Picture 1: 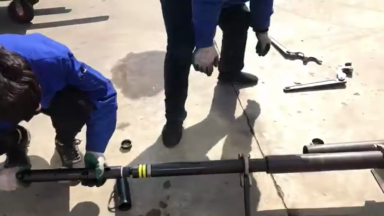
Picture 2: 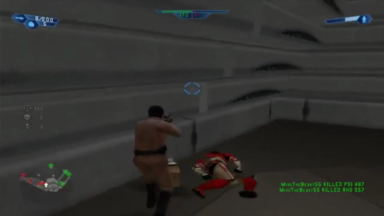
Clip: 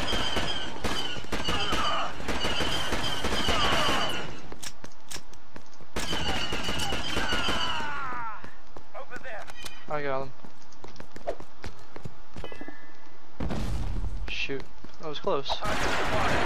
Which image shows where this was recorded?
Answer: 2